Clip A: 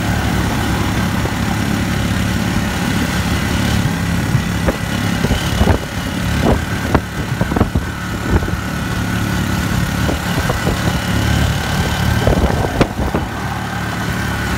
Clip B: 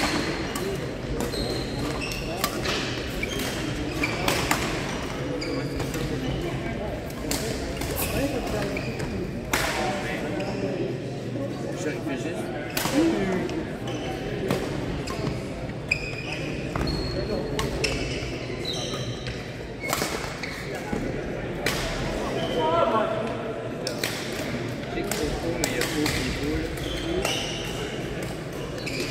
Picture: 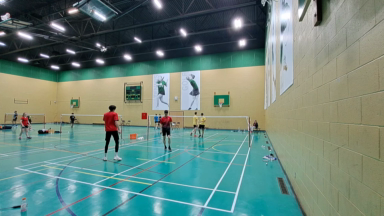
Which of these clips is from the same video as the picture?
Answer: B